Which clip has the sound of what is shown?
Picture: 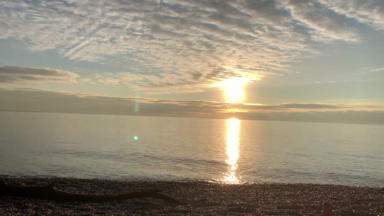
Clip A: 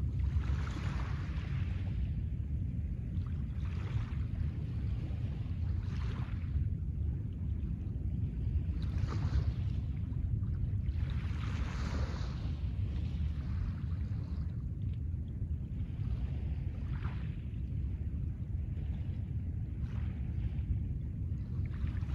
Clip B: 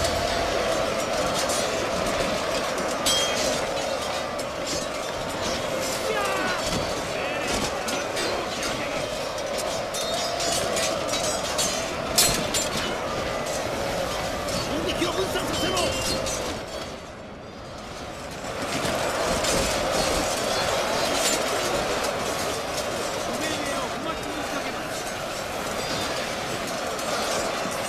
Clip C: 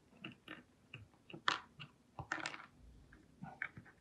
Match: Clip A